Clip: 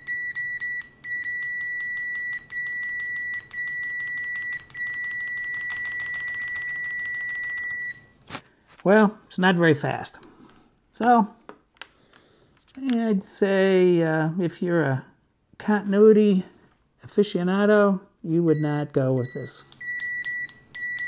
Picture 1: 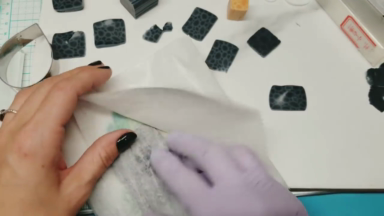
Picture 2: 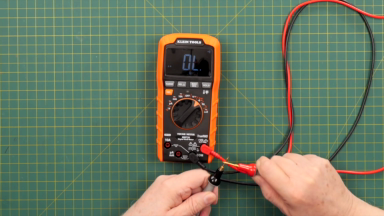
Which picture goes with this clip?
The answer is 2